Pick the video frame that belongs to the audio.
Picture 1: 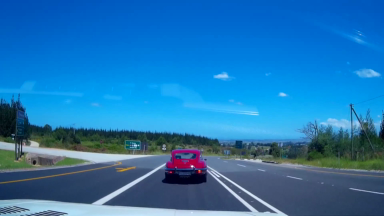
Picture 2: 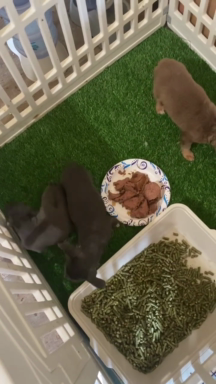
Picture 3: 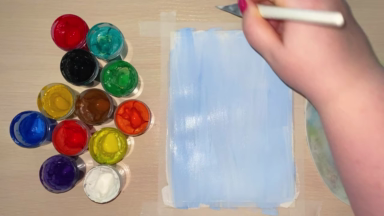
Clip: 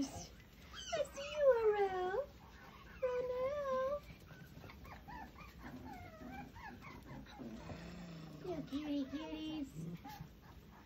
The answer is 2